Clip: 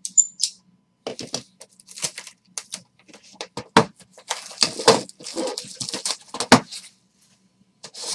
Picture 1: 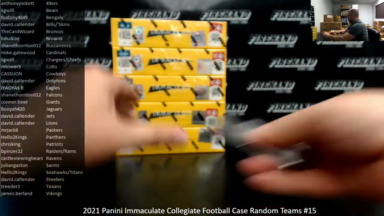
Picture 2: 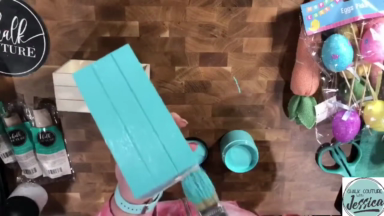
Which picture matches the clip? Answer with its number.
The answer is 1